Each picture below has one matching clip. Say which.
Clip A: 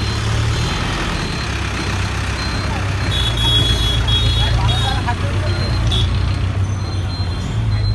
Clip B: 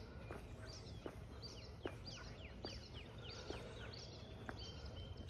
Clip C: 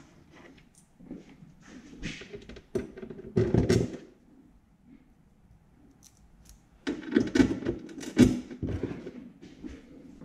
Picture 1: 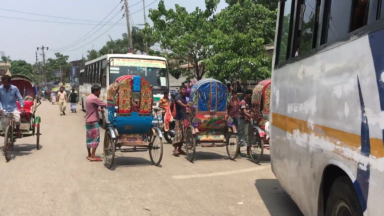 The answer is A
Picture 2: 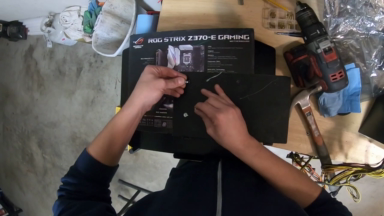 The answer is C